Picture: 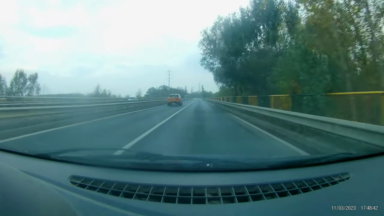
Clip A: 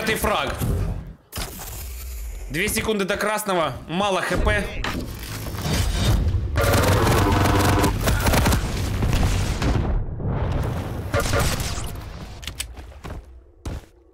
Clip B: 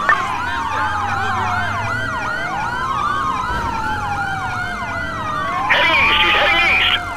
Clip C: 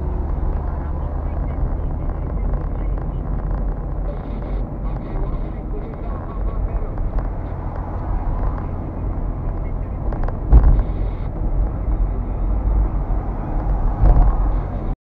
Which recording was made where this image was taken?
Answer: C